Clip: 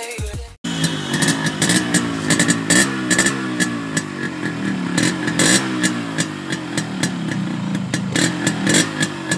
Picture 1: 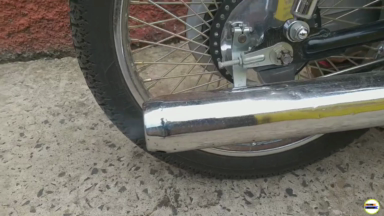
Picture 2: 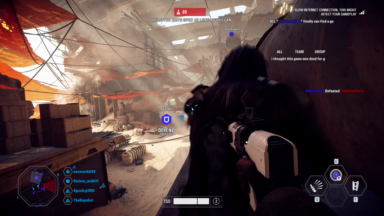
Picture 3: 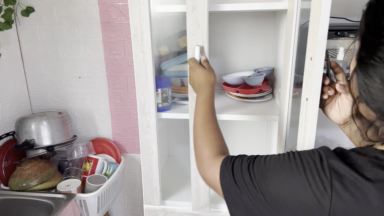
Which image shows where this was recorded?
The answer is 1